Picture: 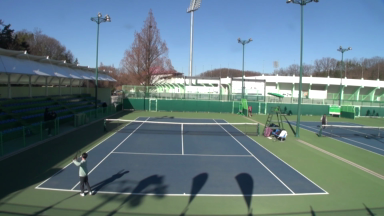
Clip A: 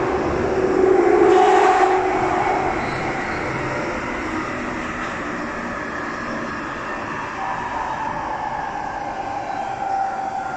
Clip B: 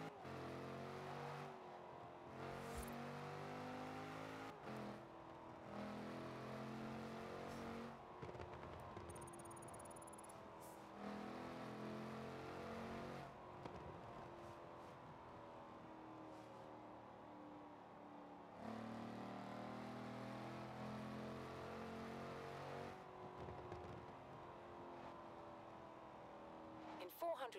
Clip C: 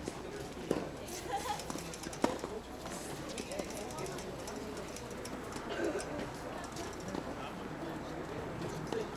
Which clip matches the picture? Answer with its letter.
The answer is C